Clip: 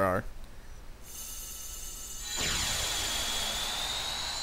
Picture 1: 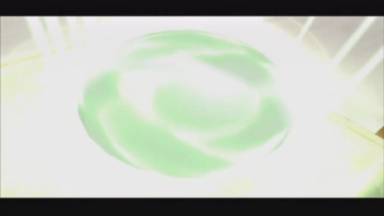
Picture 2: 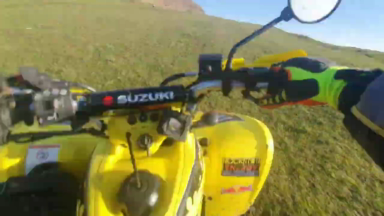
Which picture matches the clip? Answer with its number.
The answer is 1